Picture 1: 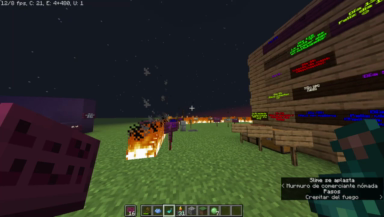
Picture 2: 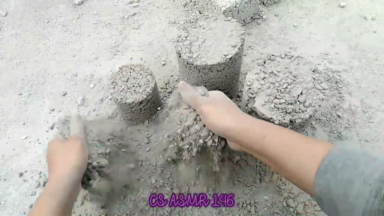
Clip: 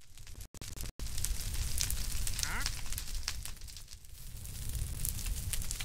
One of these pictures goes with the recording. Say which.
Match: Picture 1